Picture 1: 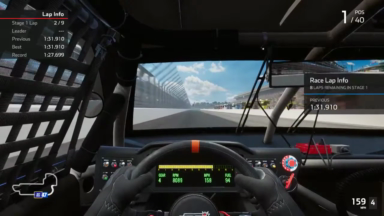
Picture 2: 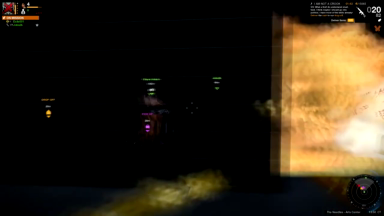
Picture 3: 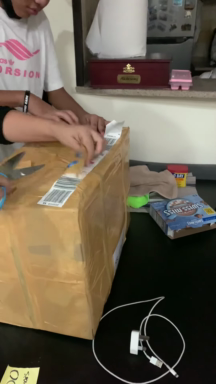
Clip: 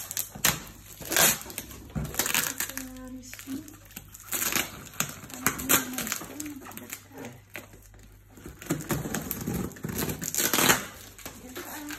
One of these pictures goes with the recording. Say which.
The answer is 3